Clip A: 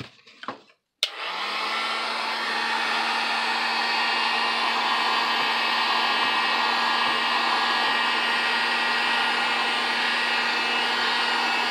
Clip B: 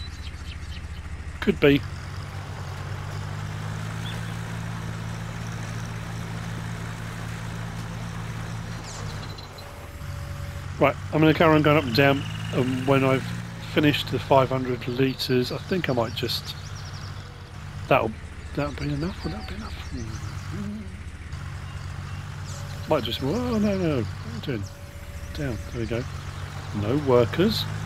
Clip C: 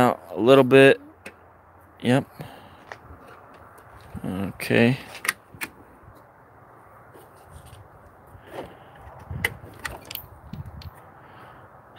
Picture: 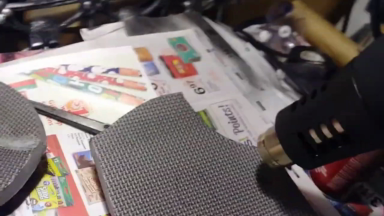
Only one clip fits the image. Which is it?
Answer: A